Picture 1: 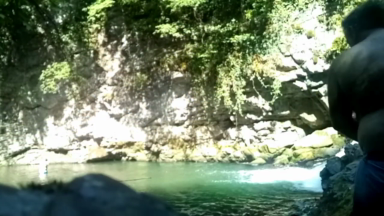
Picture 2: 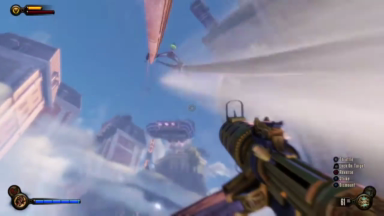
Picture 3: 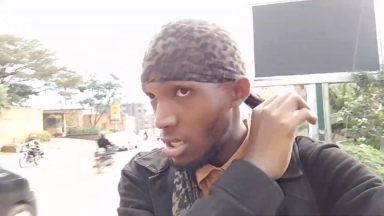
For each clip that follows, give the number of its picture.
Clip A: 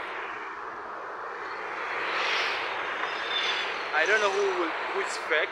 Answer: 3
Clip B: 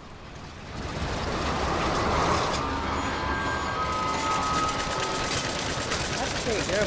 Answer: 2